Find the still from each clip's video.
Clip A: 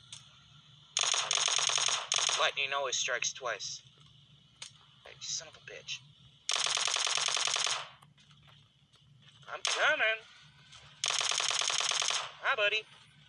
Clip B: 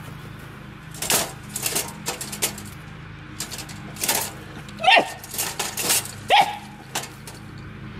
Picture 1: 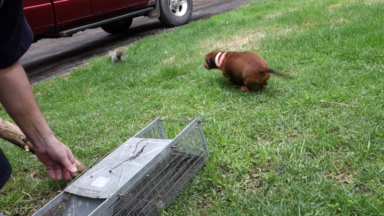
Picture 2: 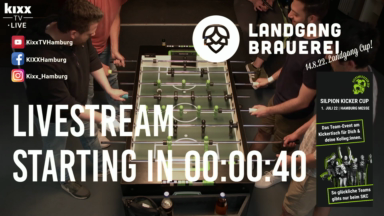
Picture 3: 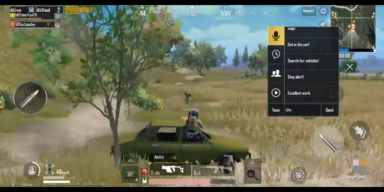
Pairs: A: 3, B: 1